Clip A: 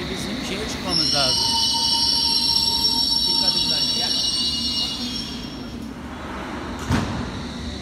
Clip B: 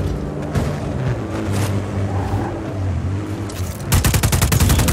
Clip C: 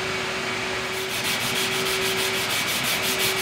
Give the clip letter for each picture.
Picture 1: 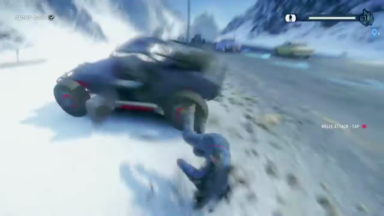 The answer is B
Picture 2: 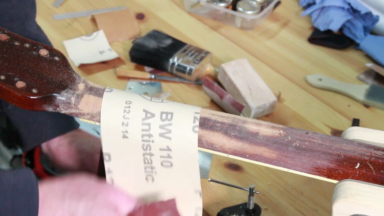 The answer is C